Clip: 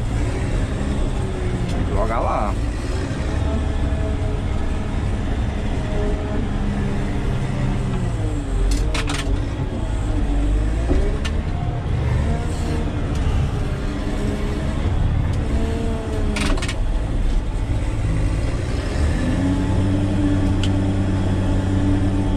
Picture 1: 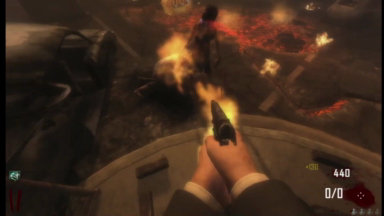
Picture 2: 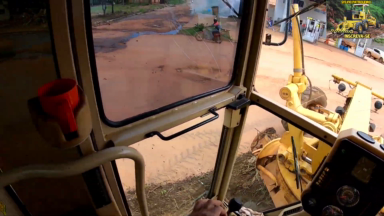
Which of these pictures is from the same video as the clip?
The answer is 2